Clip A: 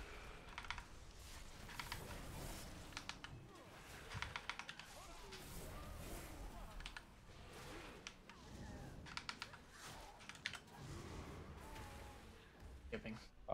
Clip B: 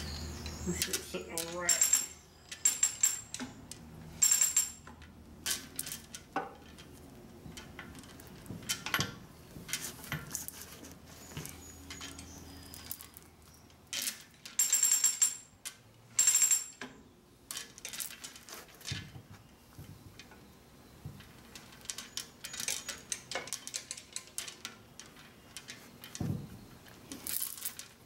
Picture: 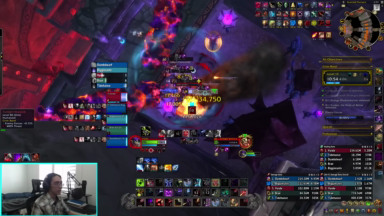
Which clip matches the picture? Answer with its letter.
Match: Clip A